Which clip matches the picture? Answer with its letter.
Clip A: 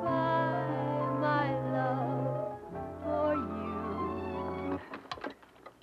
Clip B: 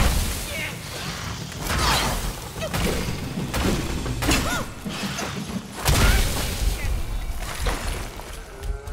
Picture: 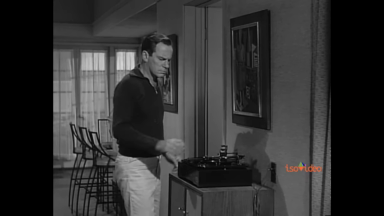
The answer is A